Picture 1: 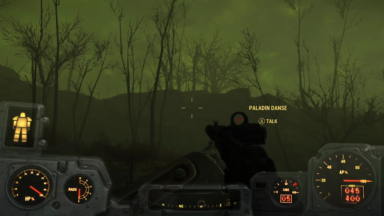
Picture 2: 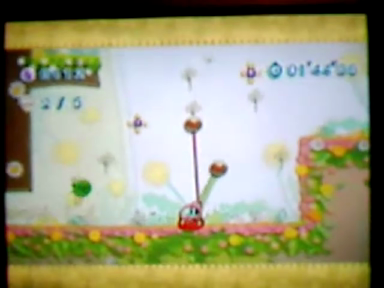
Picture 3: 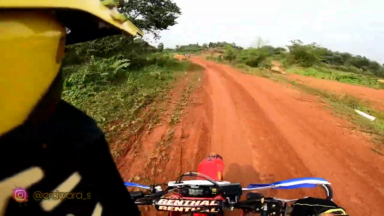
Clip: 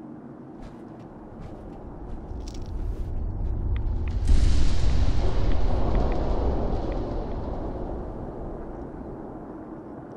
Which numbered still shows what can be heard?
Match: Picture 1